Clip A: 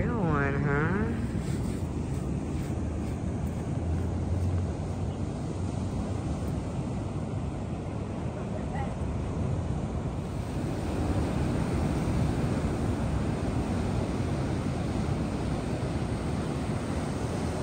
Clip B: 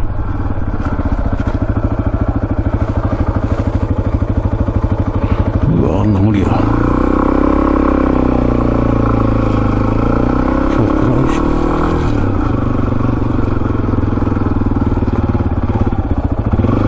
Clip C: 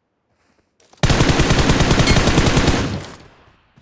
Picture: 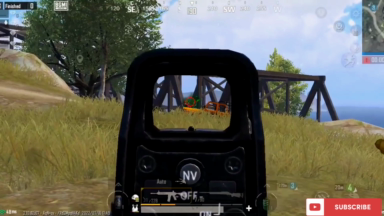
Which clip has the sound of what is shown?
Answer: C